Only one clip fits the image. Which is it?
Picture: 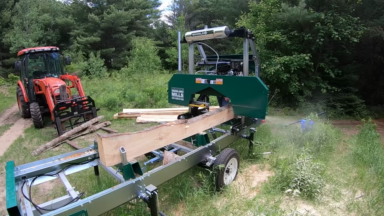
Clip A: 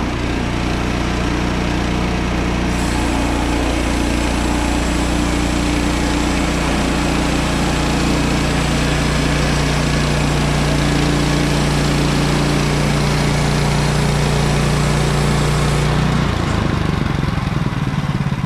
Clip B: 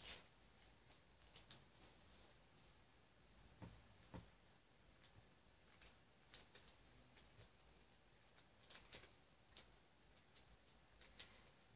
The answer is A